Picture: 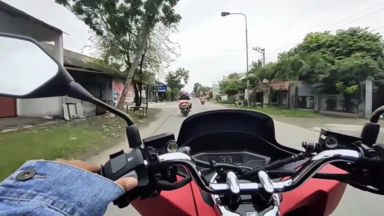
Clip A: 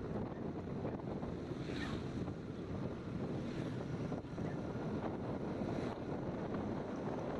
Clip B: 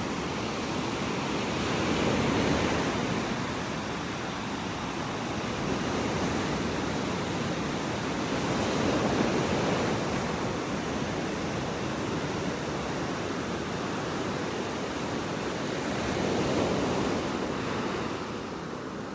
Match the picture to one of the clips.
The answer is A